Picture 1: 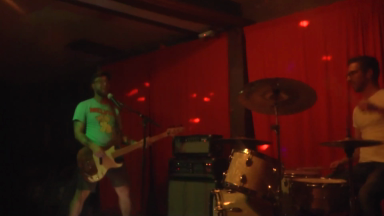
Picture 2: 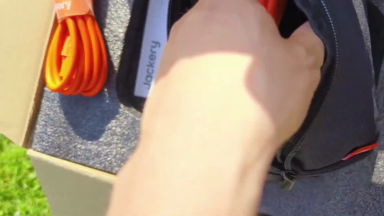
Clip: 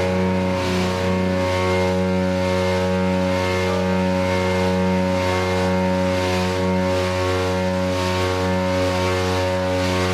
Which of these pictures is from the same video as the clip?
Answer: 1